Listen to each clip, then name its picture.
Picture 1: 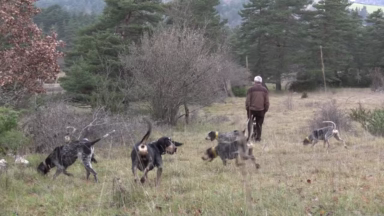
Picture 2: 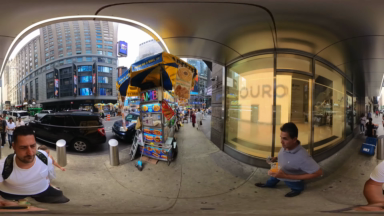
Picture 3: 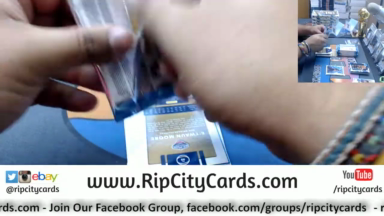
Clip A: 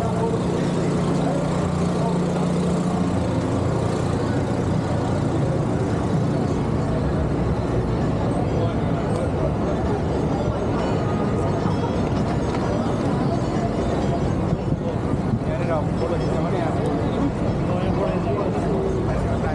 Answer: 2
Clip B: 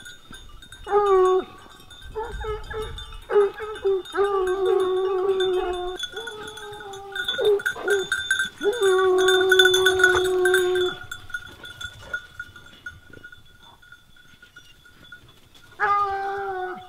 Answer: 1